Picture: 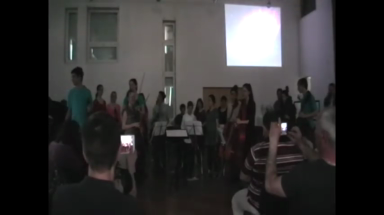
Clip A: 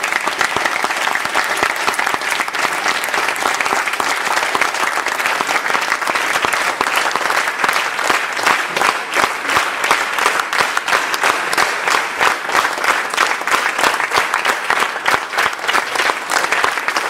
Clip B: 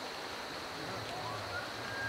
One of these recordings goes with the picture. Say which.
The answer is A